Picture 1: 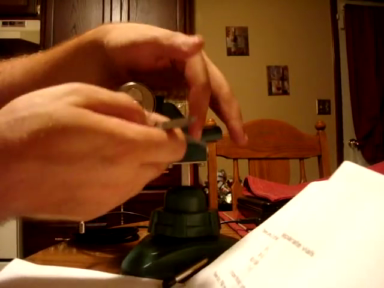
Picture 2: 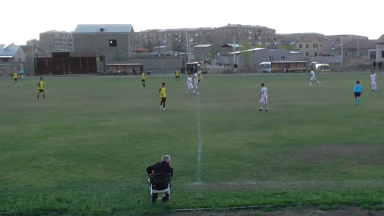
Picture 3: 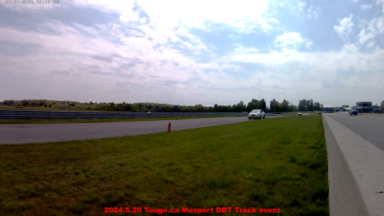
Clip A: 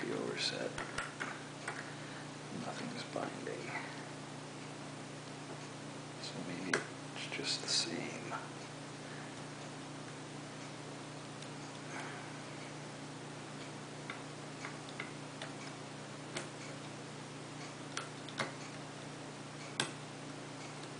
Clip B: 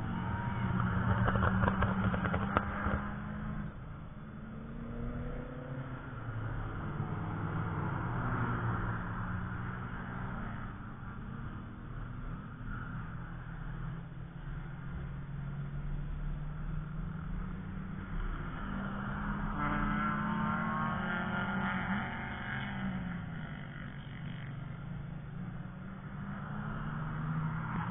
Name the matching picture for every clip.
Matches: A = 1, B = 3